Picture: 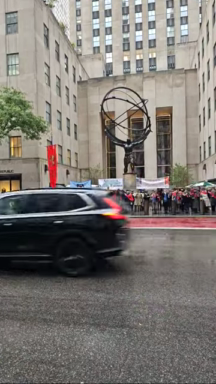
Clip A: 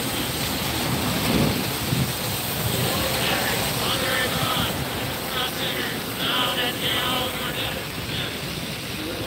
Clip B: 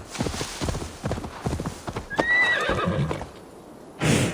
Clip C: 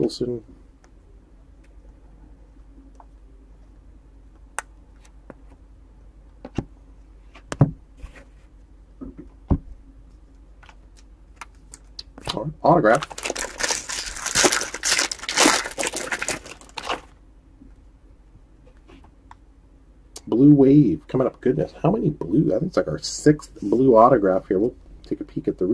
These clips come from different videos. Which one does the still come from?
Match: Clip A